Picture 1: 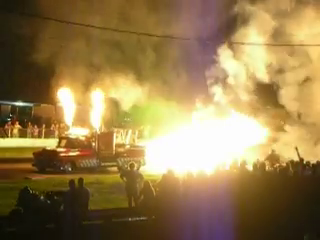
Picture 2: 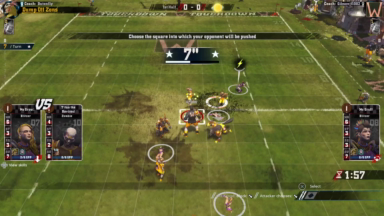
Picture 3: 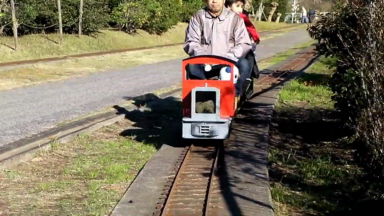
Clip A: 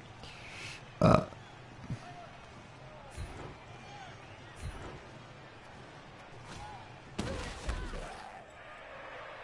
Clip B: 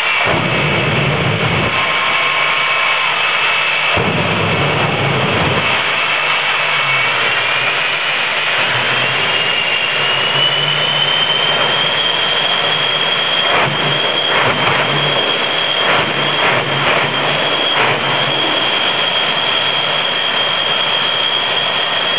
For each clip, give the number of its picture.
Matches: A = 2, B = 1